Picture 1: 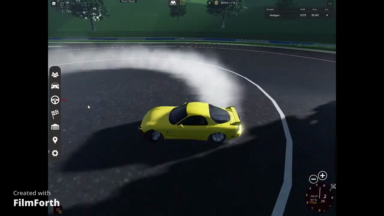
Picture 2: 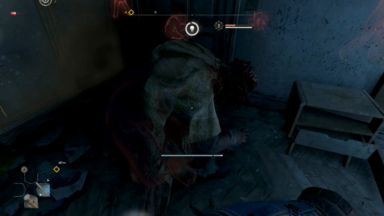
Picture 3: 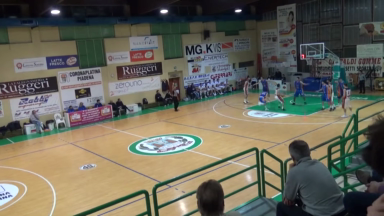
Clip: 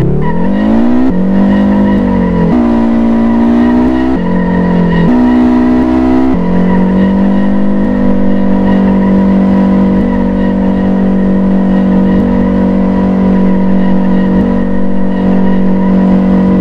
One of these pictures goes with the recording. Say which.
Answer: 1